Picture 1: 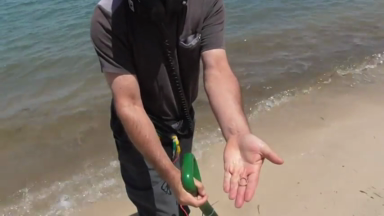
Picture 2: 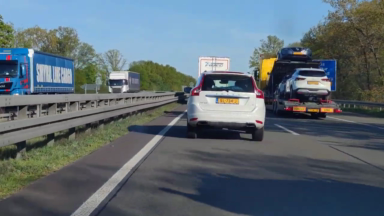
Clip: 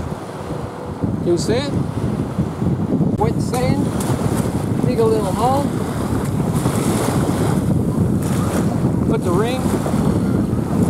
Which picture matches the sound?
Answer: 1